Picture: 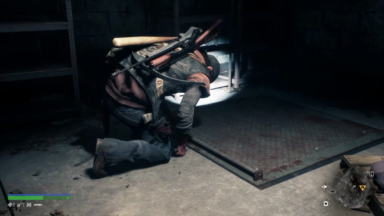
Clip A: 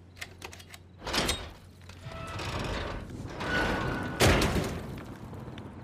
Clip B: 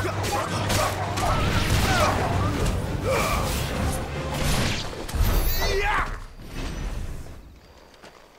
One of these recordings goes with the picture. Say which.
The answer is A